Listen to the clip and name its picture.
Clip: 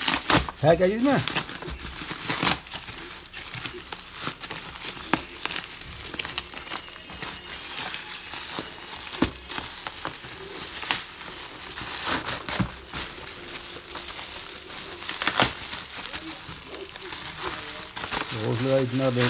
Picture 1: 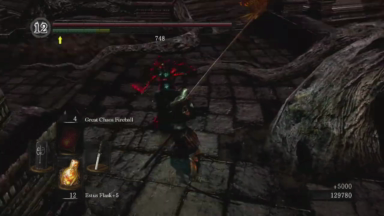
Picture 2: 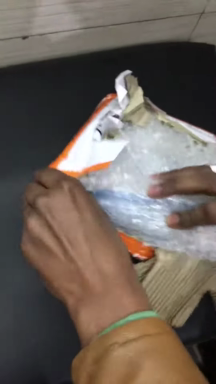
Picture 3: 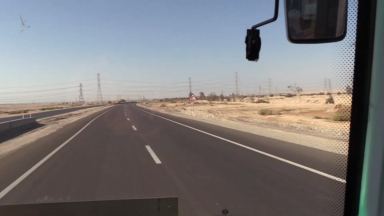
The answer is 2